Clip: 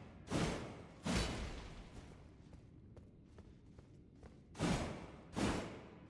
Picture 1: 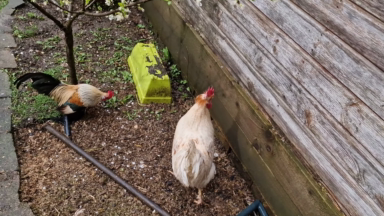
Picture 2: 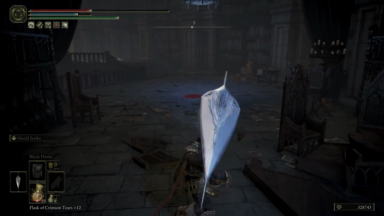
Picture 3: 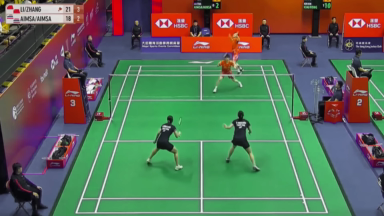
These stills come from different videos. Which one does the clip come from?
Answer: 2